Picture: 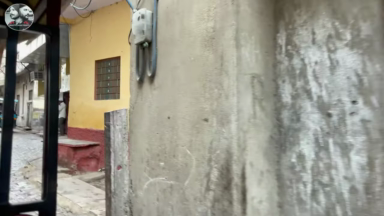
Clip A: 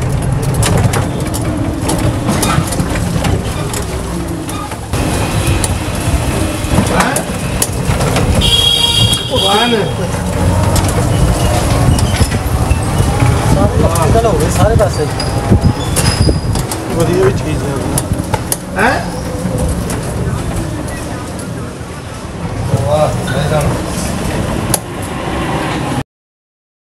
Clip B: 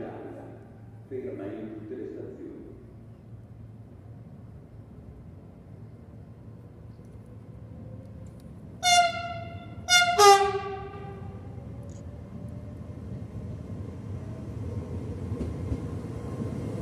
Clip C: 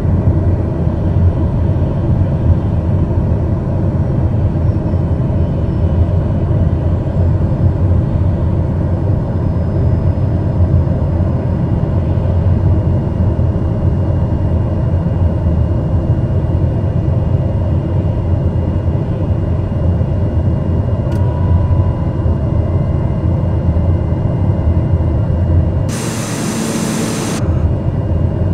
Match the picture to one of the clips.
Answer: A